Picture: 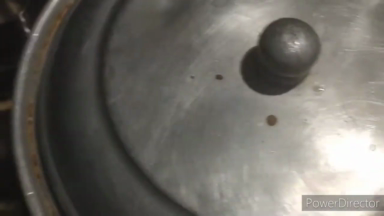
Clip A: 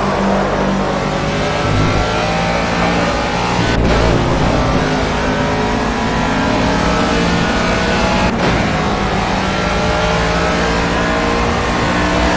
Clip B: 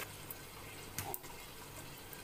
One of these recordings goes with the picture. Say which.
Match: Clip B